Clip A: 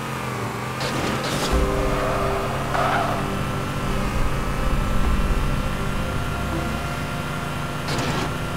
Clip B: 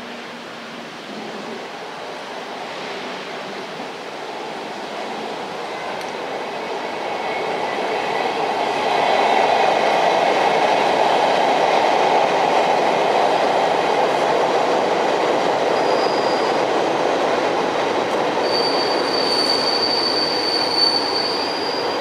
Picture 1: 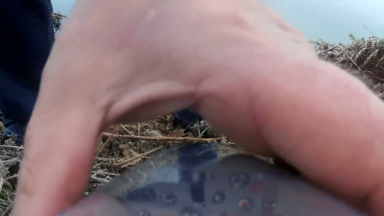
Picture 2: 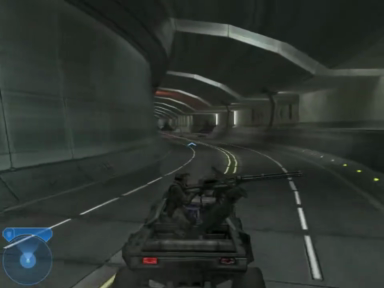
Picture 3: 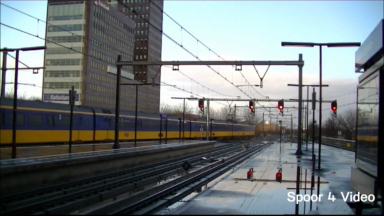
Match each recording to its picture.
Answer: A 2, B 3